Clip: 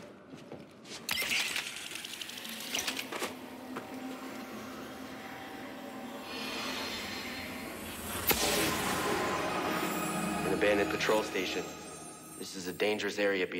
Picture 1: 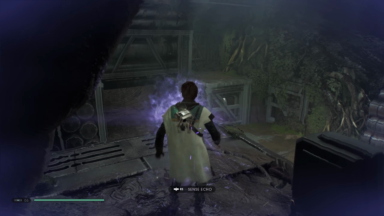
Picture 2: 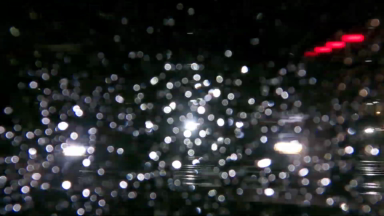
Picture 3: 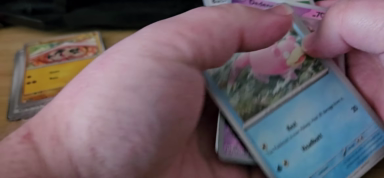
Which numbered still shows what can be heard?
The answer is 1